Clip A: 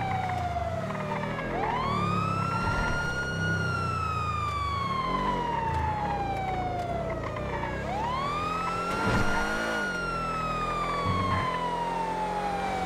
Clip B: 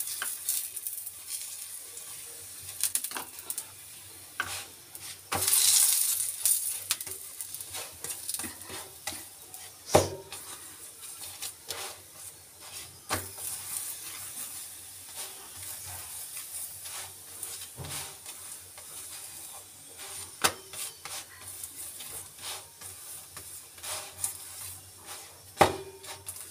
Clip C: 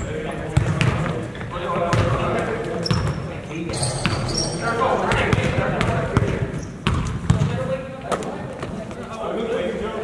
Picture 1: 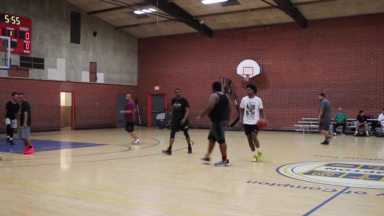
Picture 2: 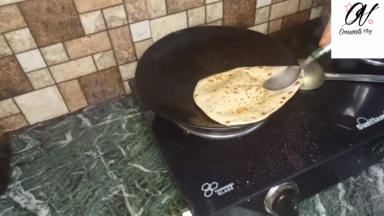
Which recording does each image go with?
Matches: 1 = C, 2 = B